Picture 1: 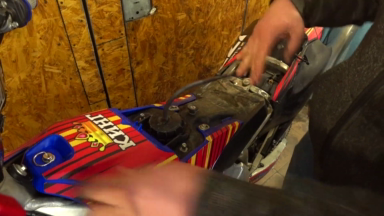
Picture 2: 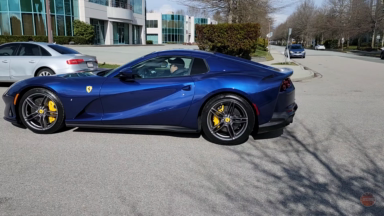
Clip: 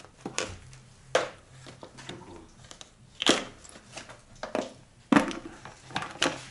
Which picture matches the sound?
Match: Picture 1